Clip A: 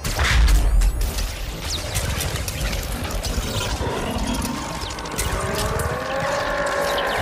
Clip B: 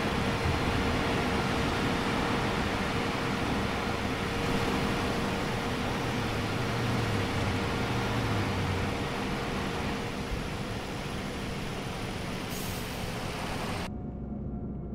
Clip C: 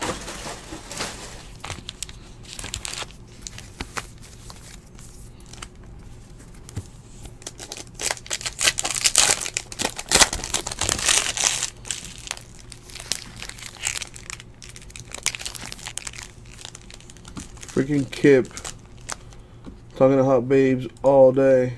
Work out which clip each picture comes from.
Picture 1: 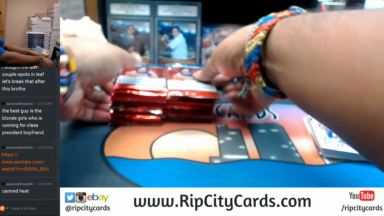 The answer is C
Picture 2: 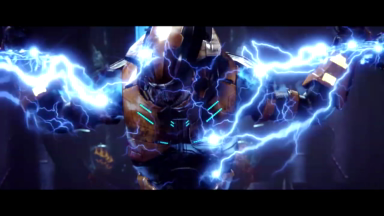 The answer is A